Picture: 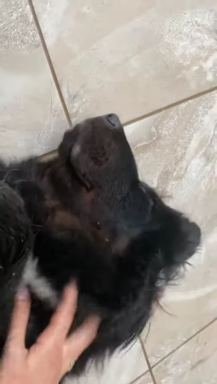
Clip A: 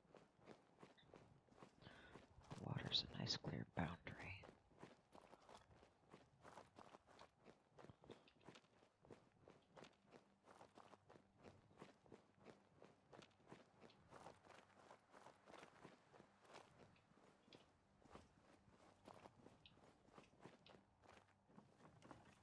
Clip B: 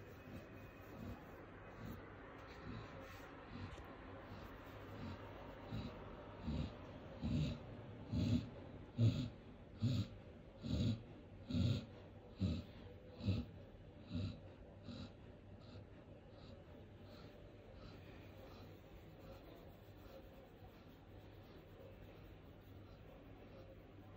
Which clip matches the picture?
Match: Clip B